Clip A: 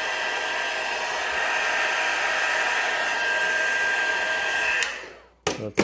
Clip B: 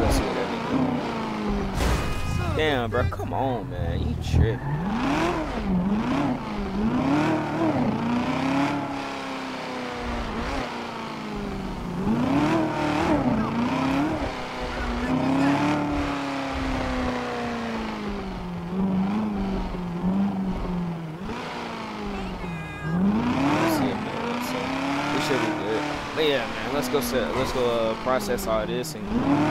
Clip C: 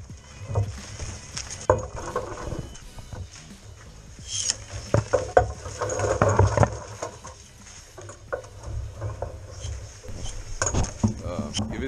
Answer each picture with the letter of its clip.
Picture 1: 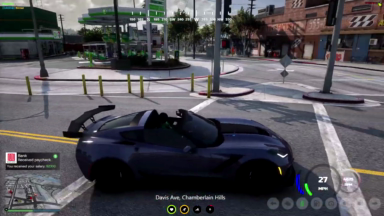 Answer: B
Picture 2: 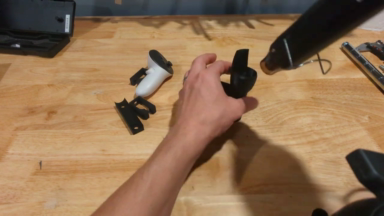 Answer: A